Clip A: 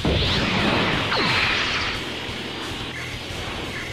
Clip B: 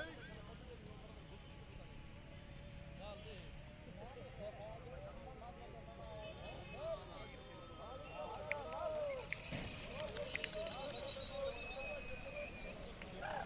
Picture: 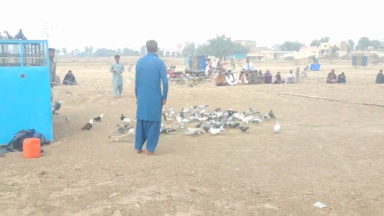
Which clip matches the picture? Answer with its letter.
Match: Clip B